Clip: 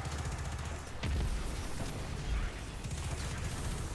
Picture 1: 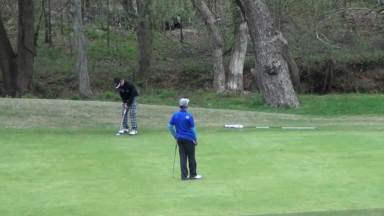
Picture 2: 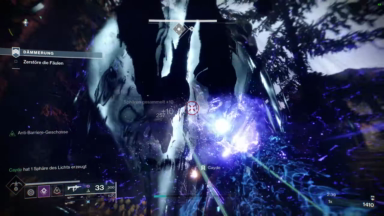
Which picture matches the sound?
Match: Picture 2